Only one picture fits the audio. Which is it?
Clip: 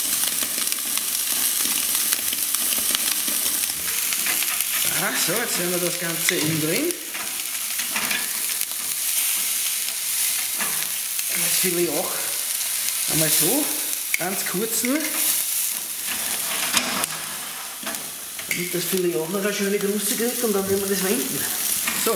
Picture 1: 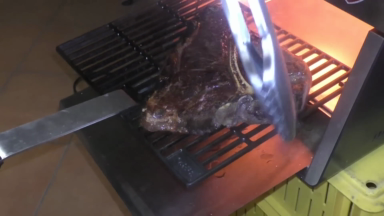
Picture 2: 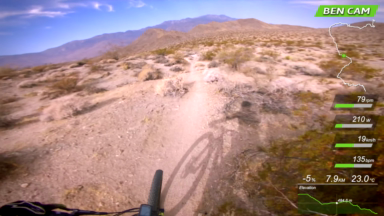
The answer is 1